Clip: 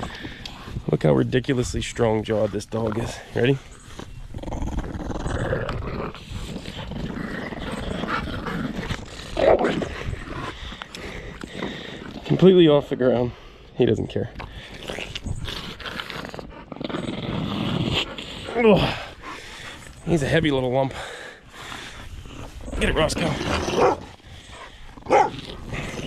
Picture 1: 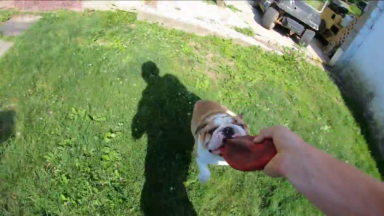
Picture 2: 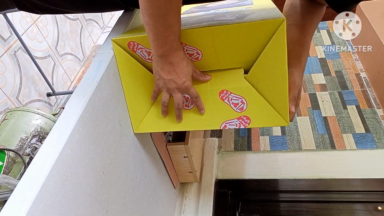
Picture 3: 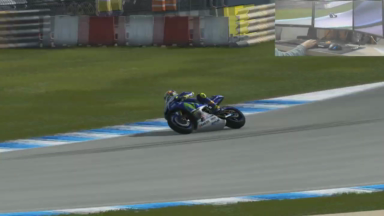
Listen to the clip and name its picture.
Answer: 1